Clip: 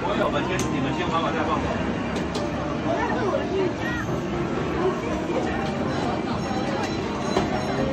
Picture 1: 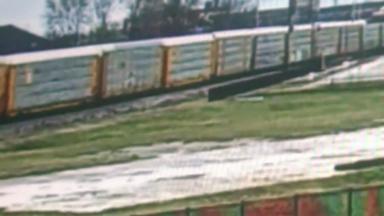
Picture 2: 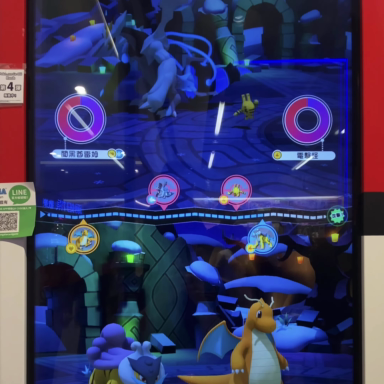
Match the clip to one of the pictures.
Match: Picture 2